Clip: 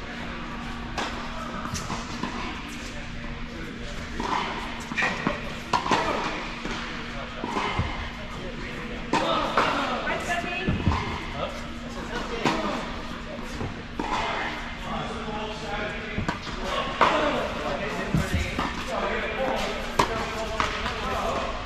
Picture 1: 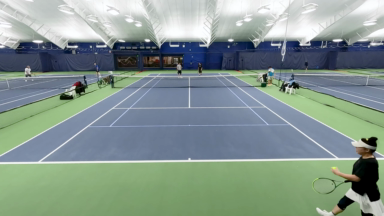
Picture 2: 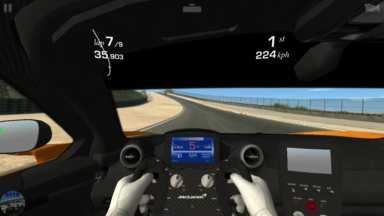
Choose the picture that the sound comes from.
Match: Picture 1